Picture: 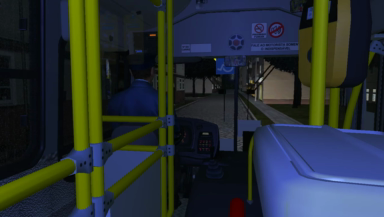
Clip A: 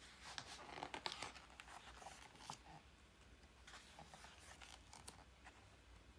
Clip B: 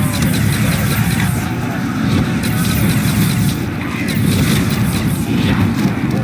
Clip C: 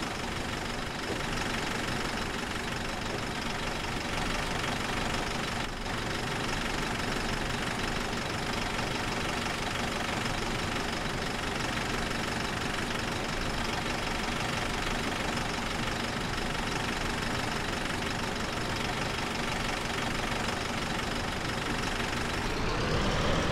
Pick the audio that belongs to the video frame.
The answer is C